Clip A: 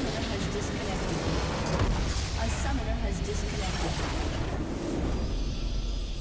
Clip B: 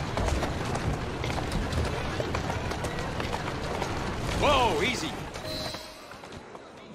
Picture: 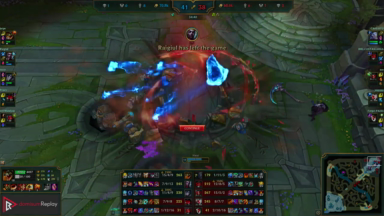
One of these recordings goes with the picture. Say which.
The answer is A